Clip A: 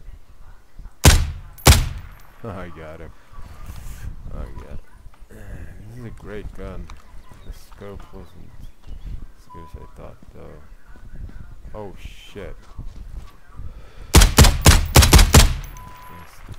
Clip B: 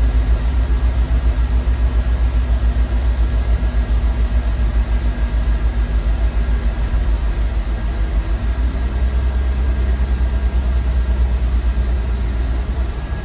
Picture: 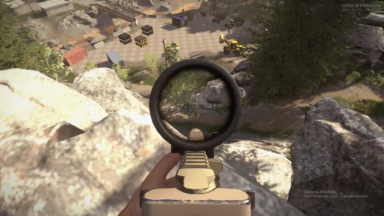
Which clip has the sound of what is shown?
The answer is A